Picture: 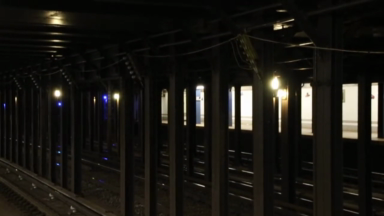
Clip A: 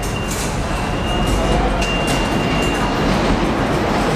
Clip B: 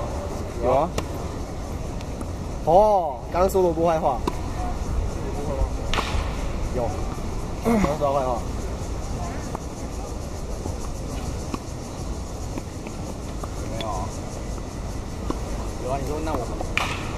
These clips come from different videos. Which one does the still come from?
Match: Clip A